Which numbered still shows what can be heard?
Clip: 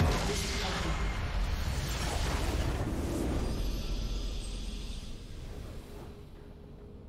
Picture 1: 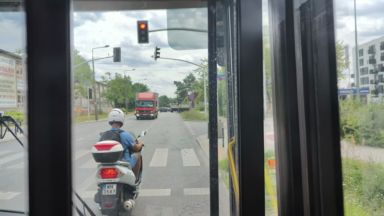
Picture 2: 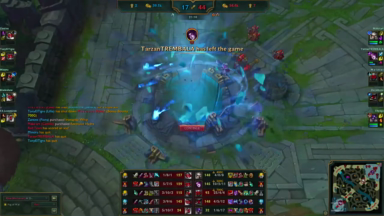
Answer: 2